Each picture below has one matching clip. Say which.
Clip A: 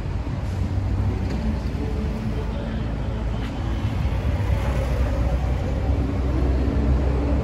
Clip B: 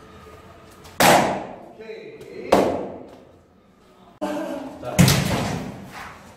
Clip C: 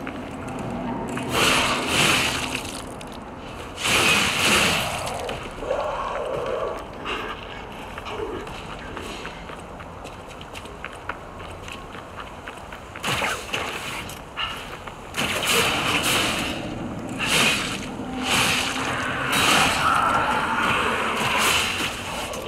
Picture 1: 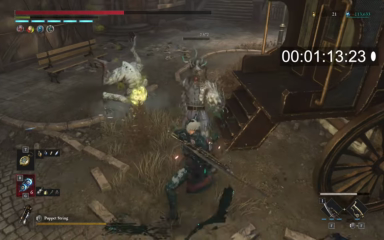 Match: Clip C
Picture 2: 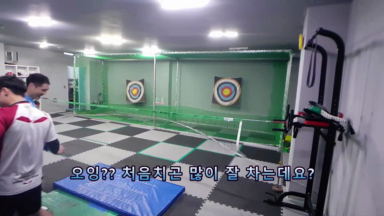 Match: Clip B